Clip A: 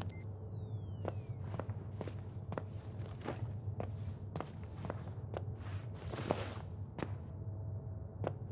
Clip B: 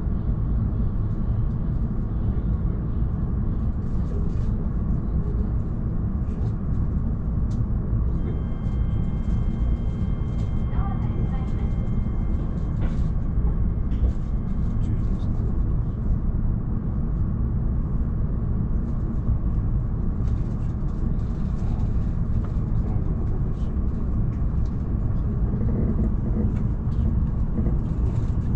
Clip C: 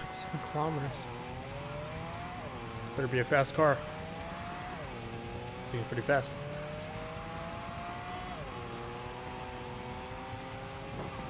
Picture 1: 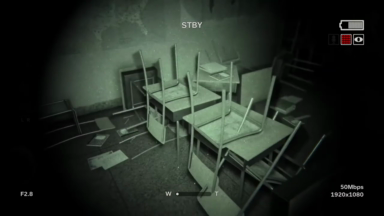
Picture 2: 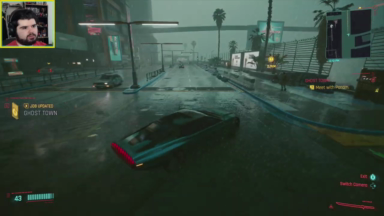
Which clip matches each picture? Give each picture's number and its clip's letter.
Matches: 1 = A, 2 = C